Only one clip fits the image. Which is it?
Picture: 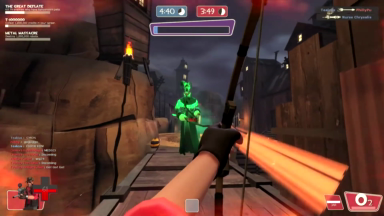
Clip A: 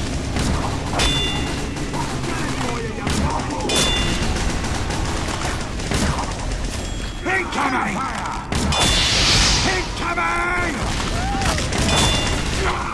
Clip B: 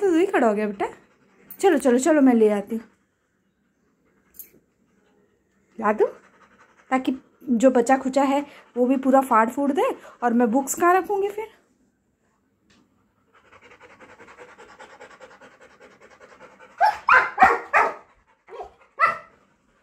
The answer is A